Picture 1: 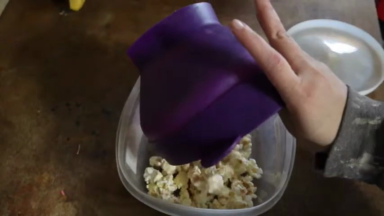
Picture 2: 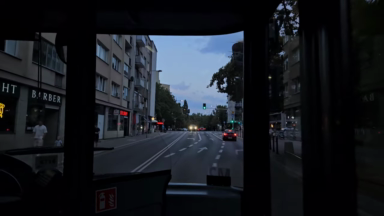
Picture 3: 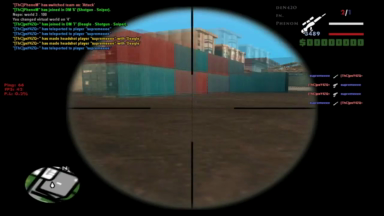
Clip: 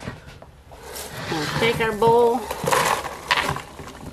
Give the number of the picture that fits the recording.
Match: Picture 1